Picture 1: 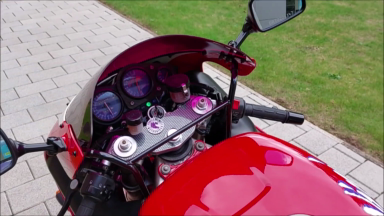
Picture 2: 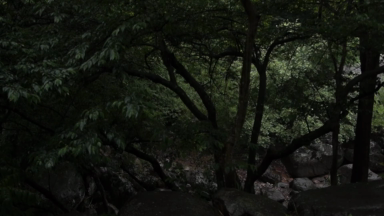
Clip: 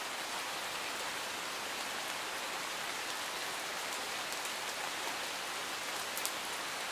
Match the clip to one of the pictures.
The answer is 2